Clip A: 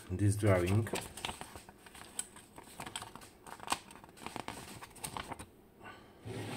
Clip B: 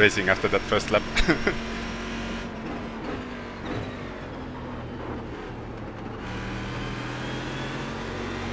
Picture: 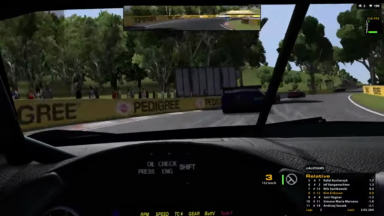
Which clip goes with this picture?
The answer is B